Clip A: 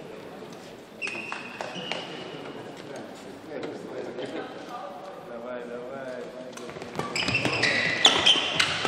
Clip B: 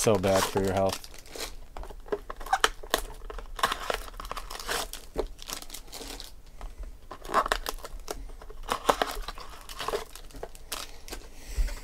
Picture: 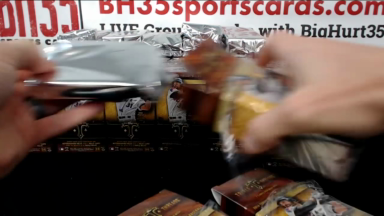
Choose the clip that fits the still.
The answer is B